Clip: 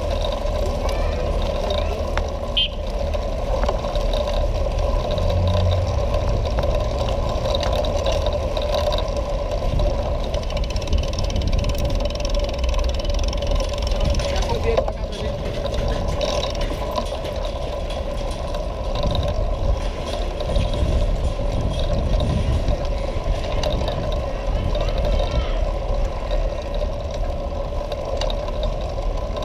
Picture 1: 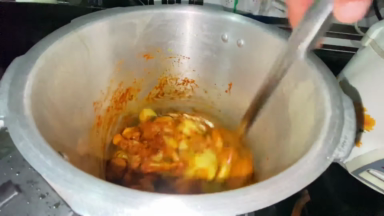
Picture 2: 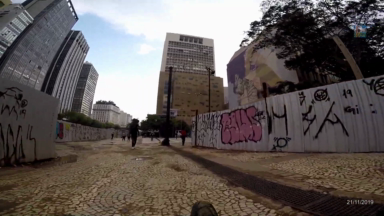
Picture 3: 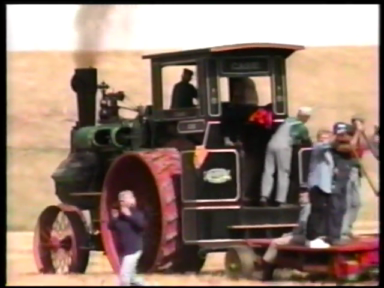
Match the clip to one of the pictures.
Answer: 2